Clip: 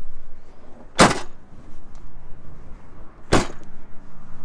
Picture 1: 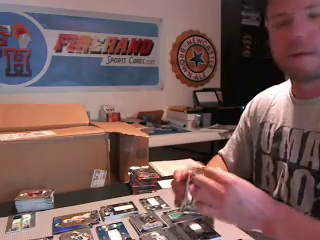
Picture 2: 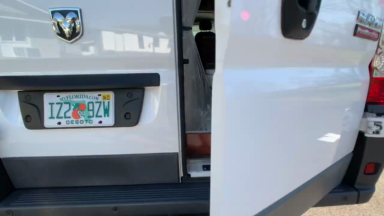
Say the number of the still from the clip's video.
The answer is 2